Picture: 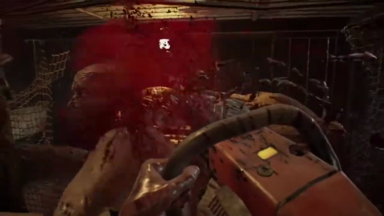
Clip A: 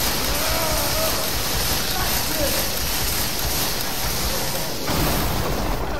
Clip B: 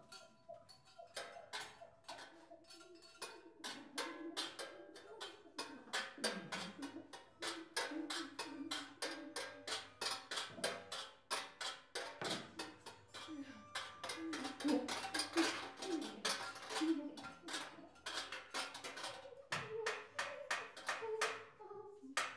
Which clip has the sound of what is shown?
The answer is A